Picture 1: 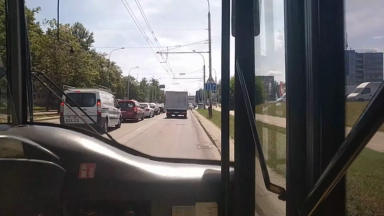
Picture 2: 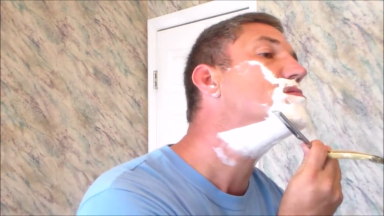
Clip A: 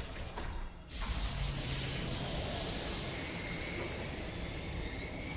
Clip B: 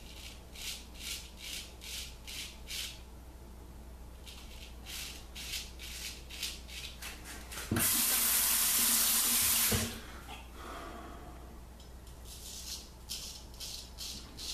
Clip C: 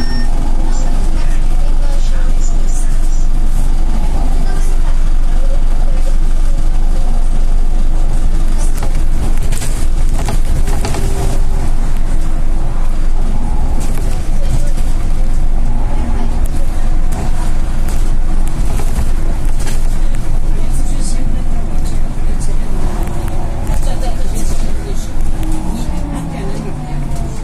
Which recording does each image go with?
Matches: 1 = C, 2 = B